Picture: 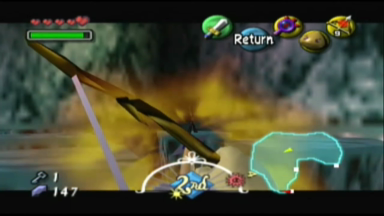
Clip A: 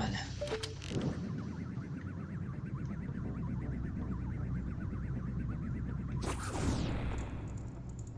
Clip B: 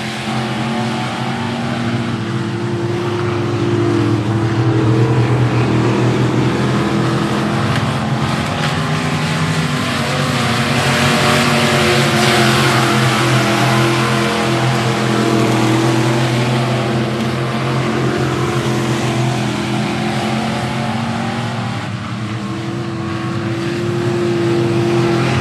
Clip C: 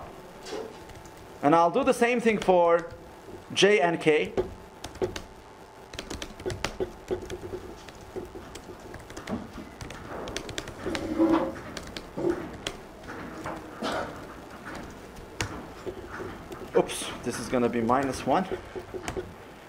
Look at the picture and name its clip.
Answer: A